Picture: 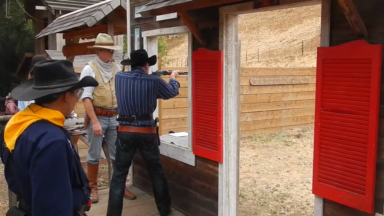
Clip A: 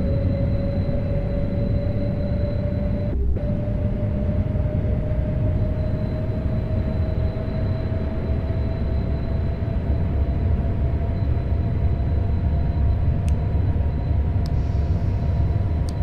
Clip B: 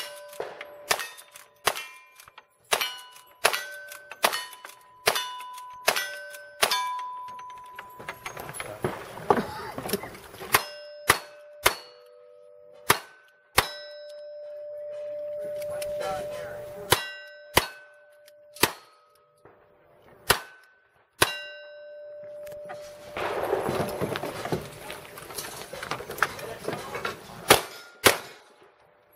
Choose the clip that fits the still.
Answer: B